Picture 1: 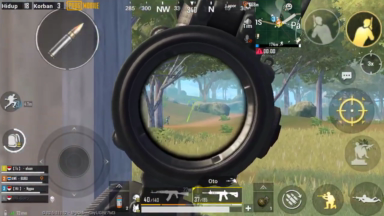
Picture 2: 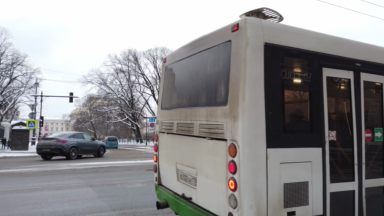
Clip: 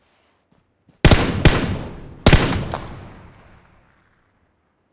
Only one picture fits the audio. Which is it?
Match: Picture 1